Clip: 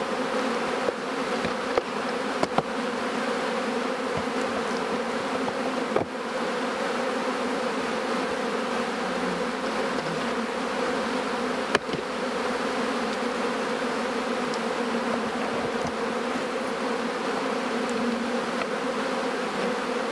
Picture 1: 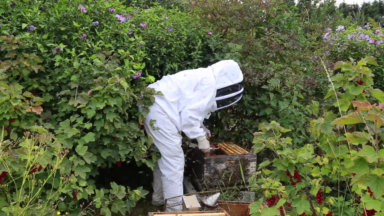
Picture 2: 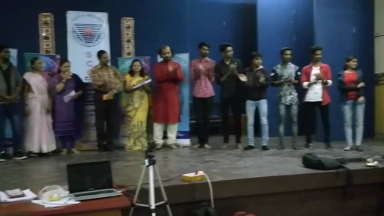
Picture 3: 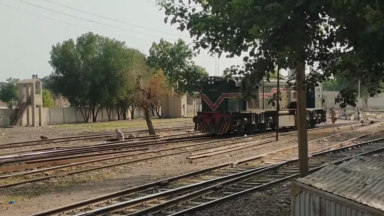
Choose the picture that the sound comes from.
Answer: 1